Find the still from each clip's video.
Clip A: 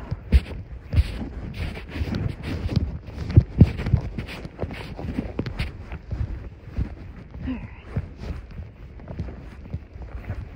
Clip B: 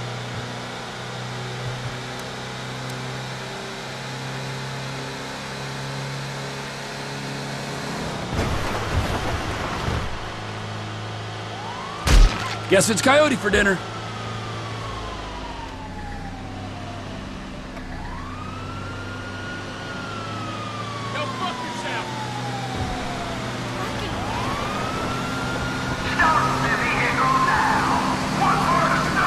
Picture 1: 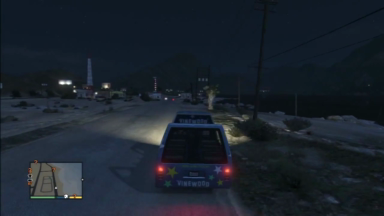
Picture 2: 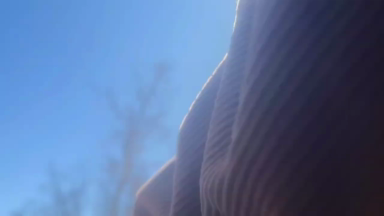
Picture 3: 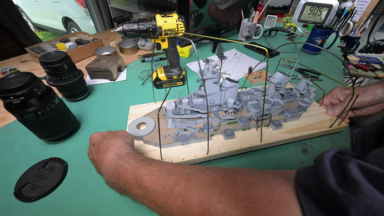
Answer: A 2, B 1